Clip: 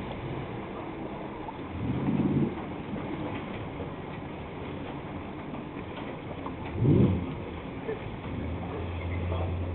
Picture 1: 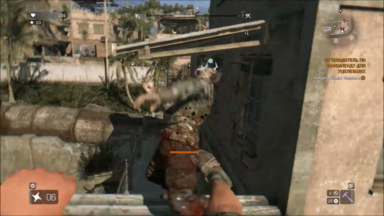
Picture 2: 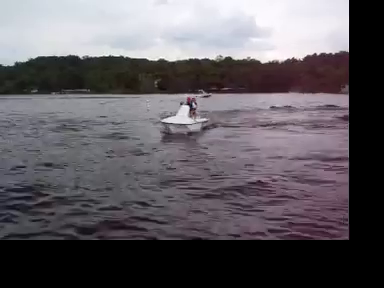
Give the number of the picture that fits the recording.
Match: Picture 2